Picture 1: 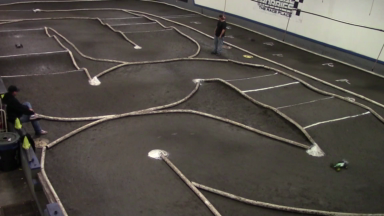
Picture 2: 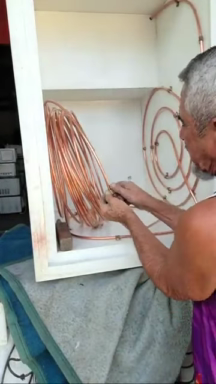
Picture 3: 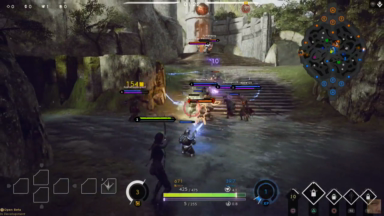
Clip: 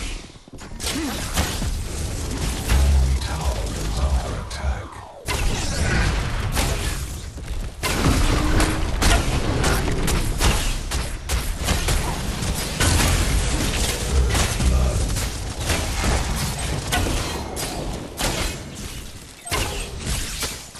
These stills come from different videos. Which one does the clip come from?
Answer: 3